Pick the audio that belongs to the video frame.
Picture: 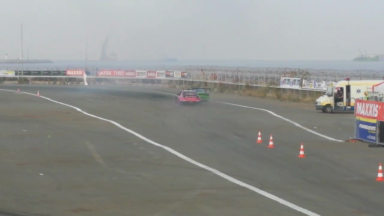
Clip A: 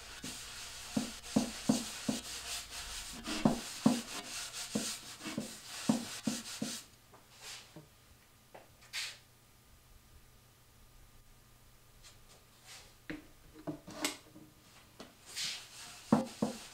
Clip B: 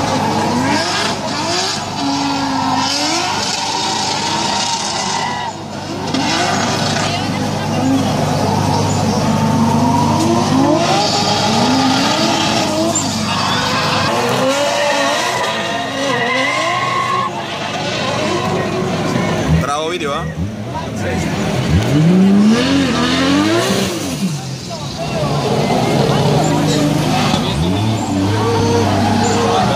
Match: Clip B